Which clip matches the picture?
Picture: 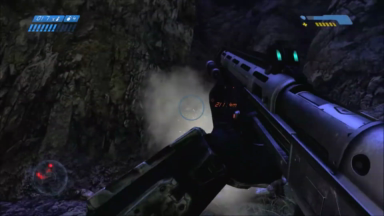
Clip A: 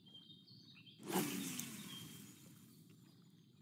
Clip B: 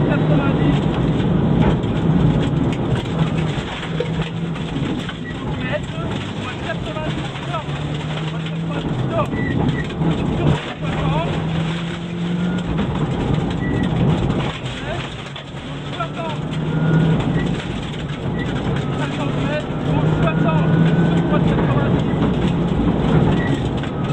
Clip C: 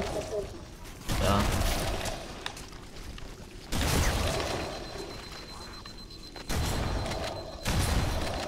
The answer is C